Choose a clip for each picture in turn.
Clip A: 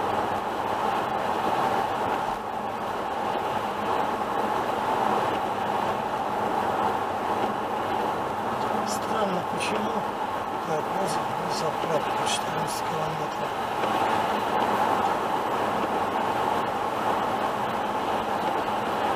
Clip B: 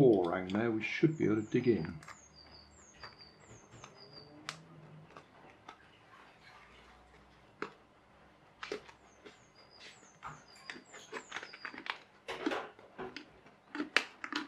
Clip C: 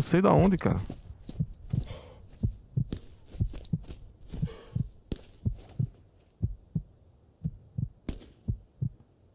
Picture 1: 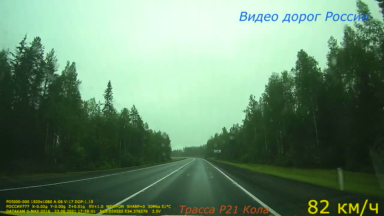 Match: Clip A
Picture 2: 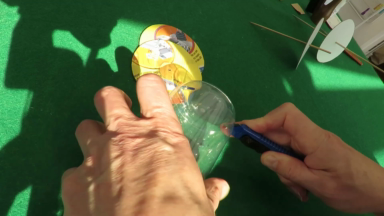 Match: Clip B